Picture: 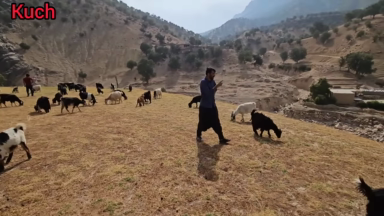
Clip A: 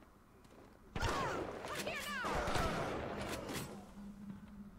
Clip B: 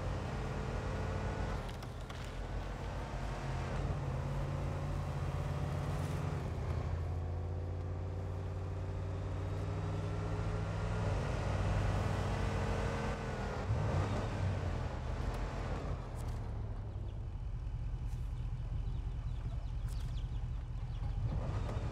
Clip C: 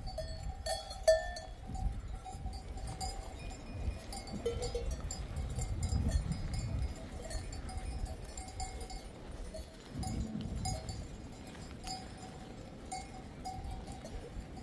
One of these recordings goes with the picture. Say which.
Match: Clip C